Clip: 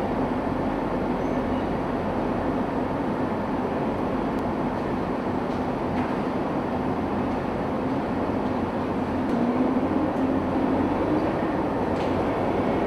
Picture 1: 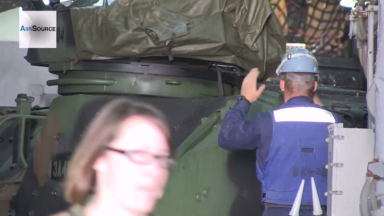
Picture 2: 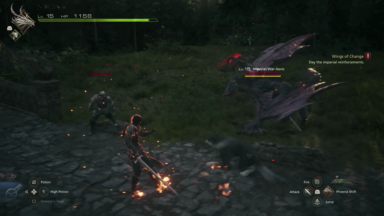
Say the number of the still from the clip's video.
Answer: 1